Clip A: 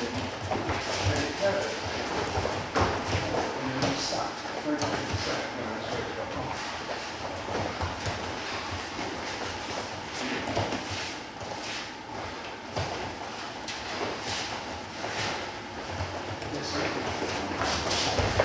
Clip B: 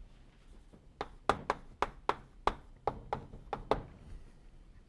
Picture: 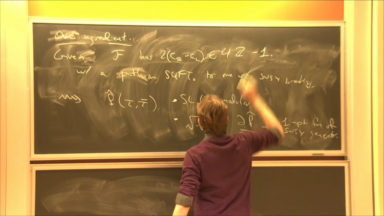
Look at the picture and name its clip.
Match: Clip B